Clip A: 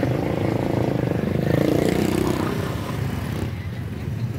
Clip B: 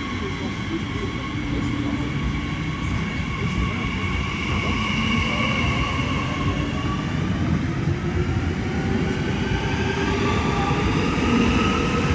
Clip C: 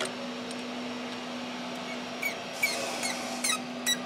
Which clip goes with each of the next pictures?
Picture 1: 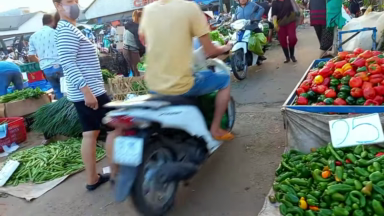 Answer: A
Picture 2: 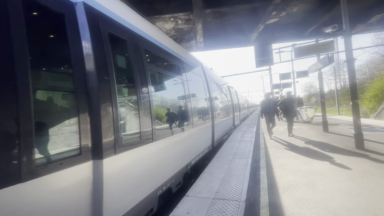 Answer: B